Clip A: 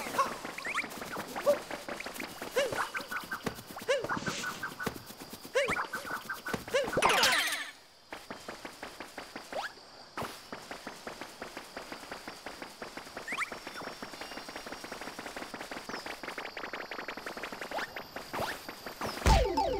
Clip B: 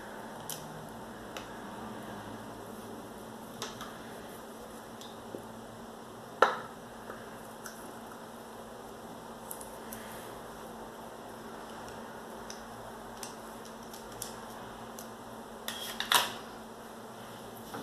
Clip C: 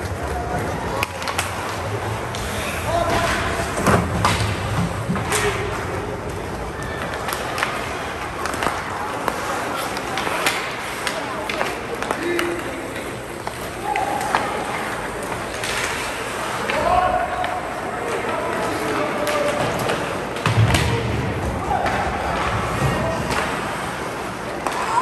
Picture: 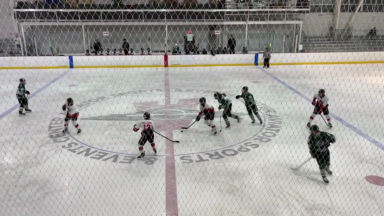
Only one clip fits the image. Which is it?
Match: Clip C